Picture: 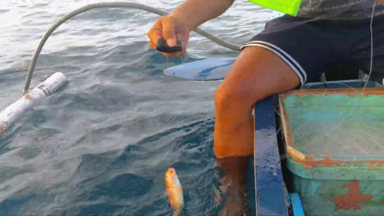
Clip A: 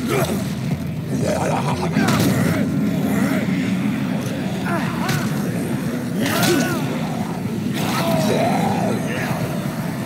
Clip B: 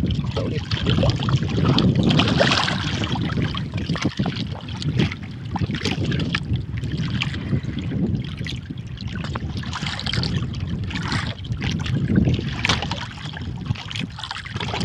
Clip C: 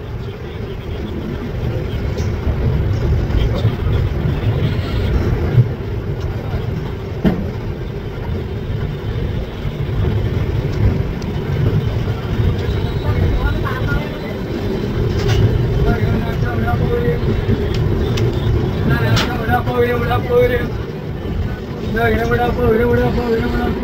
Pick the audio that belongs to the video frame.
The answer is B